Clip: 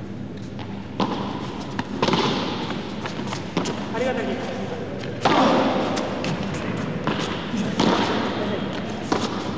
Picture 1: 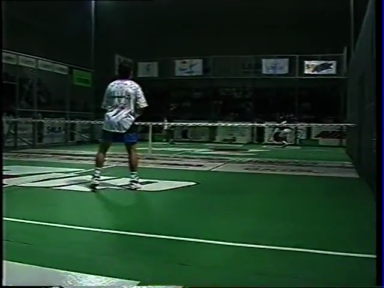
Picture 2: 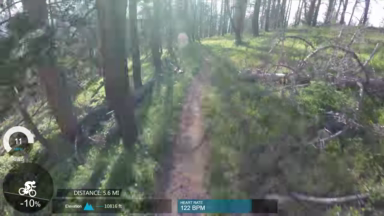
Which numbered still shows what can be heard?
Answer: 1